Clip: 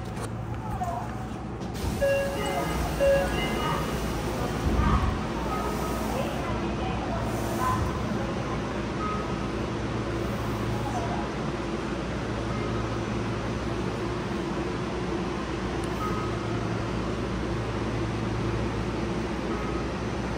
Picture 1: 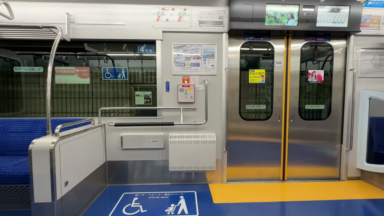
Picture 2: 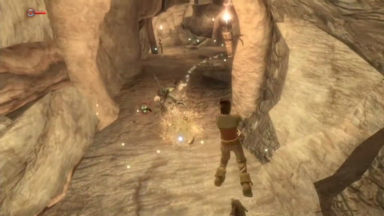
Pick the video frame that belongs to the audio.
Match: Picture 1